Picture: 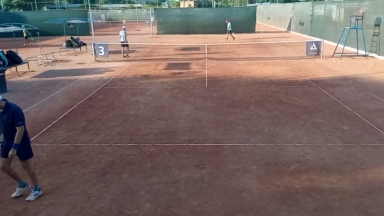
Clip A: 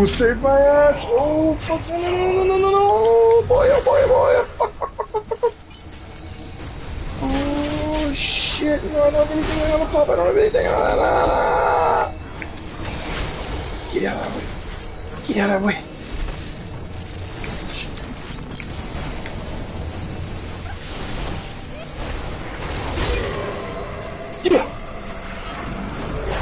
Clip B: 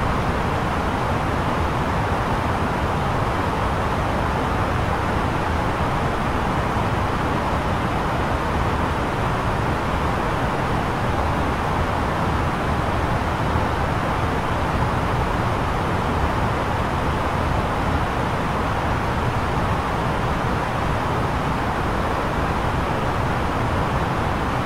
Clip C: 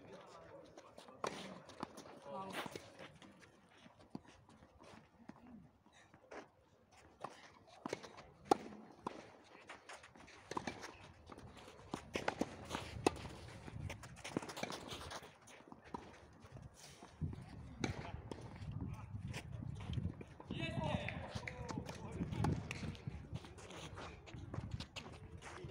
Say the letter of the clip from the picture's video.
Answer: C